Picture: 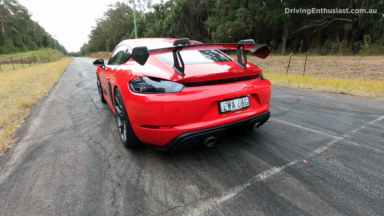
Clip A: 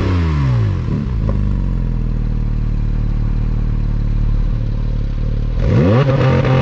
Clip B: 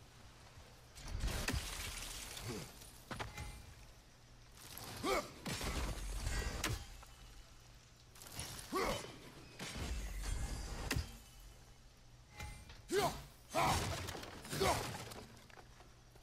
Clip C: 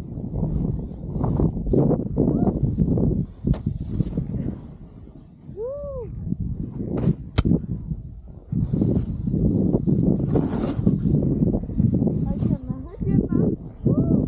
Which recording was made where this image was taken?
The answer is A